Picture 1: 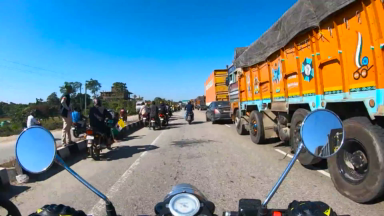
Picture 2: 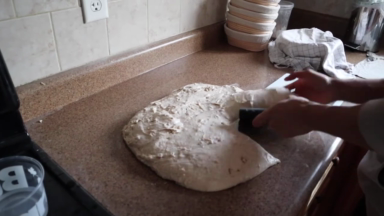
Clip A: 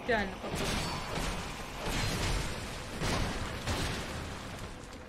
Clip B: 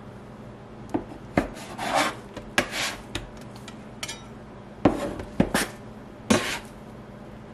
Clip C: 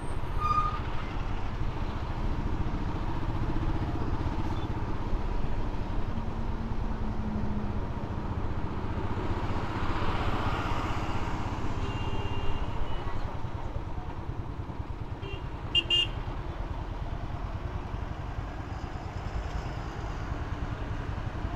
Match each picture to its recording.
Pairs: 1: C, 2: B